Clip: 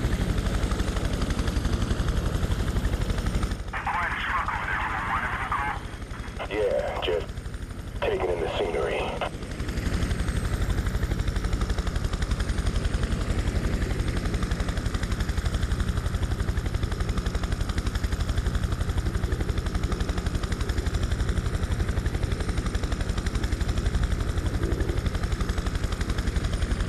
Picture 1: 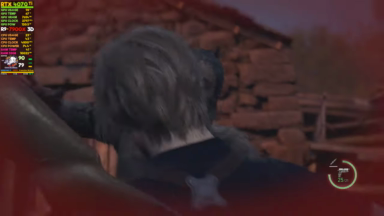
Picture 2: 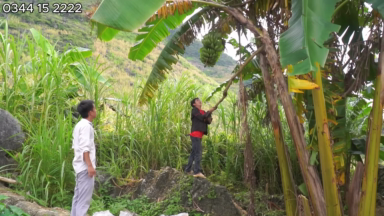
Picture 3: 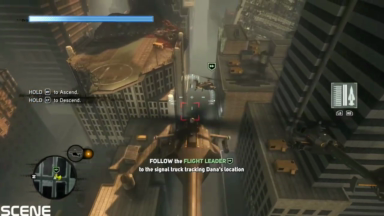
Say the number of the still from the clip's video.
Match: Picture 3